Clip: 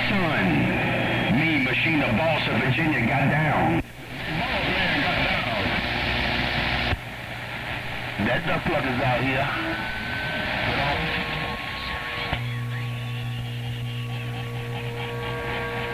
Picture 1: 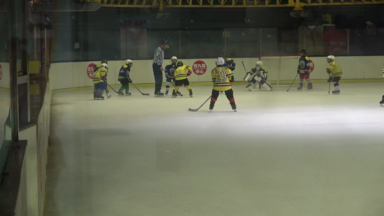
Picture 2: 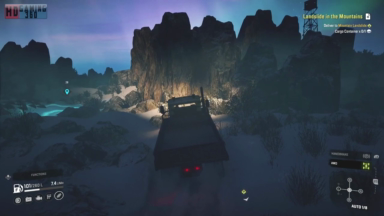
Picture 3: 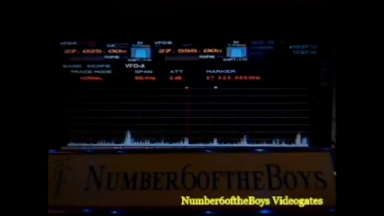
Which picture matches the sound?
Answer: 3